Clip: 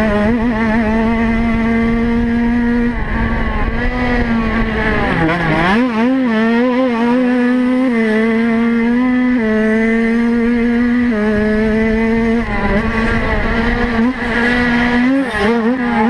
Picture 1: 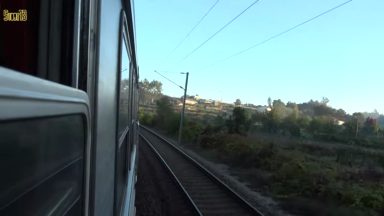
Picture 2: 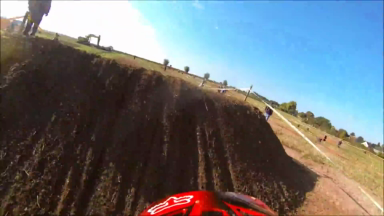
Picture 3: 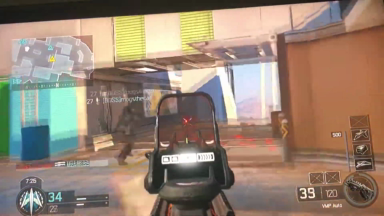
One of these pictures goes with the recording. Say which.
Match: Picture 2